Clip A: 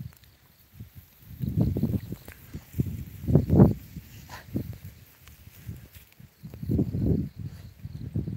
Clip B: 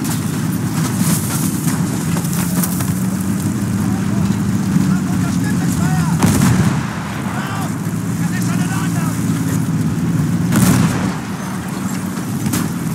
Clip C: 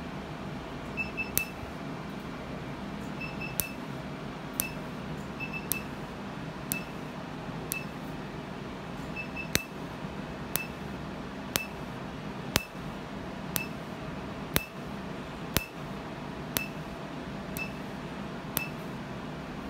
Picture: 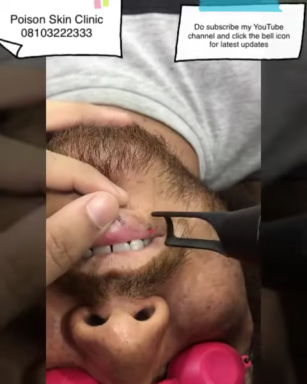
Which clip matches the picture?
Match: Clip C